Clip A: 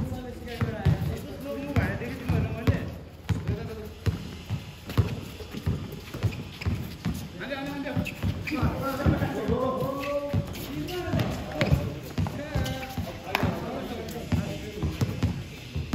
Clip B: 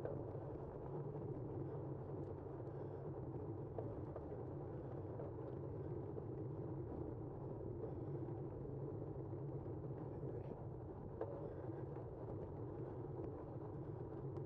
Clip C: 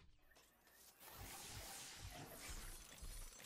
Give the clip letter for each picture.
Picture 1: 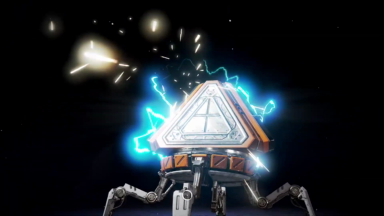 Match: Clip C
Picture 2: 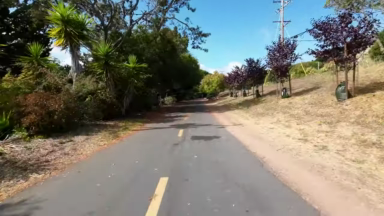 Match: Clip B